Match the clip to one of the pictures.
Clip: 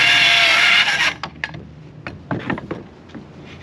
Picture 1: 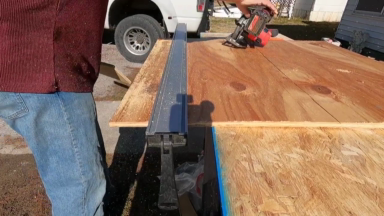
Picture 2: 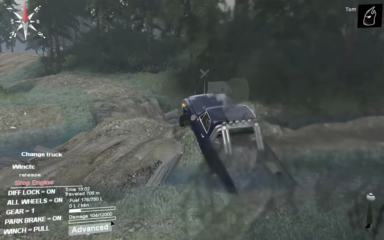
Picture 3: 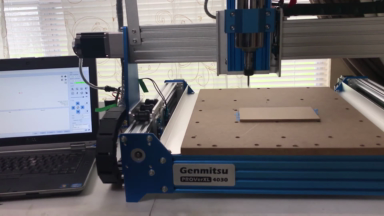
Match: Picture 1